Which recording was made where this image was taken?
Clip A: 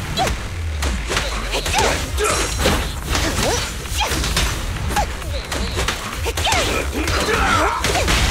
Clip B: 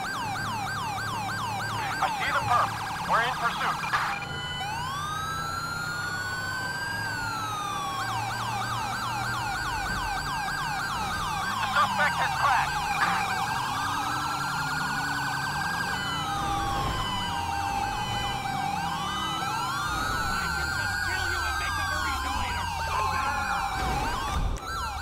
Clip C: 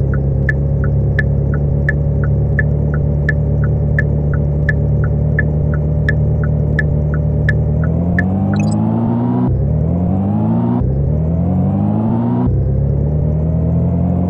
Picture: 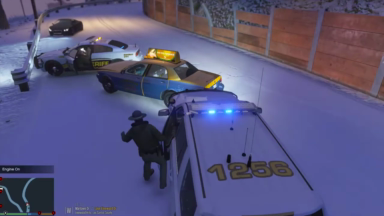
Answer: B